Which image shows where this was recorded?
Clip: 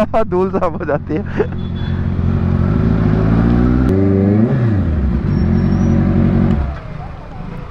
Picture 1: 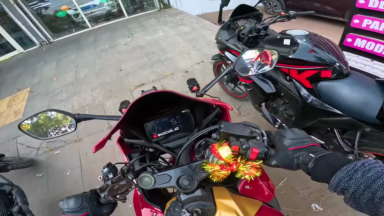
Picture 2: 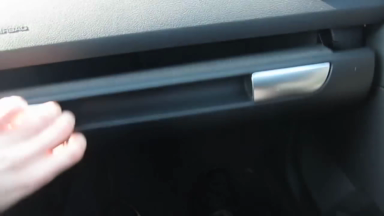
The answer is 1